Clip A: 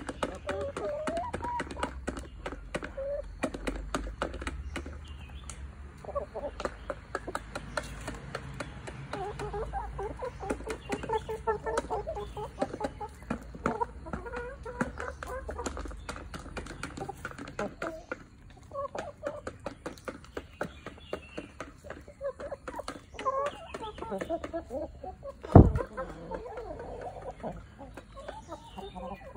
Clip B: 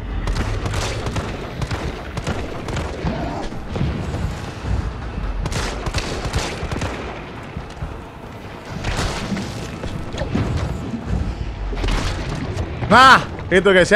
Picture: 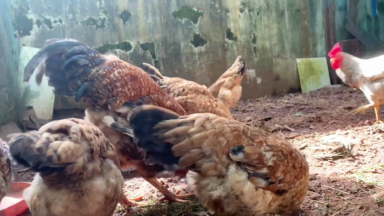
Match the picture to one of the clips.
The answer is A